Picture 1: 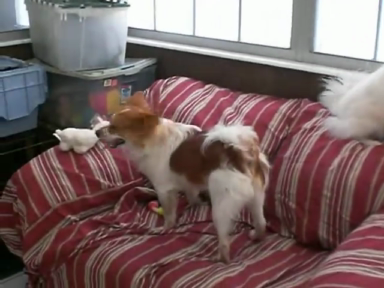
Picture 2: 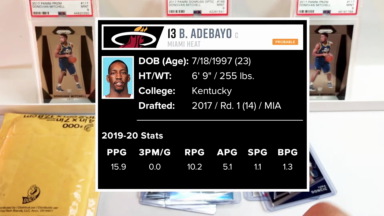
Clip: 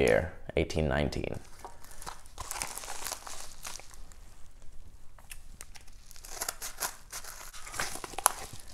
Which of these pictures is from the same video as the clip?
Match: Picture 2